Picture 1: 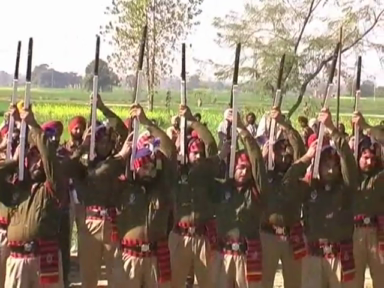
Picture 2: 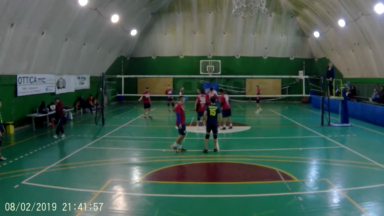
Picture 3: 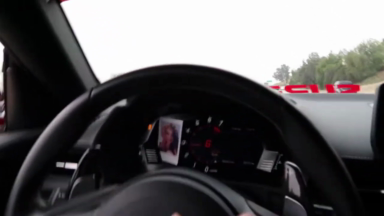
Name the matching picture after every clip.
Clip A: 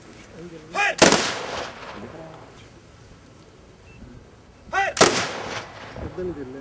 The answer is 1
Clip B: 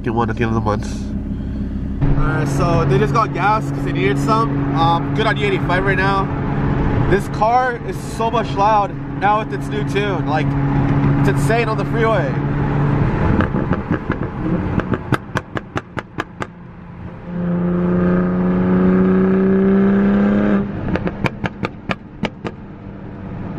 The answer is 3